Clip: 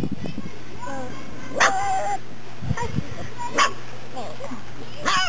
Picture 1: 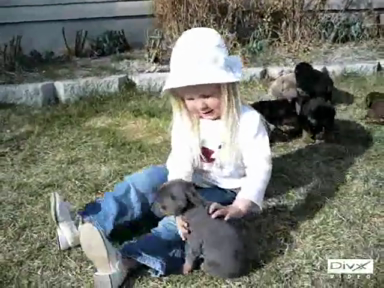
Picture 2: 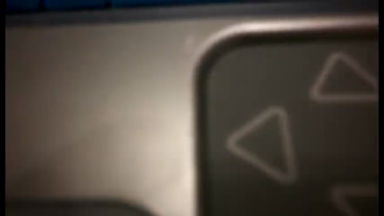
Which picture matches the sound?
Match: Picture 1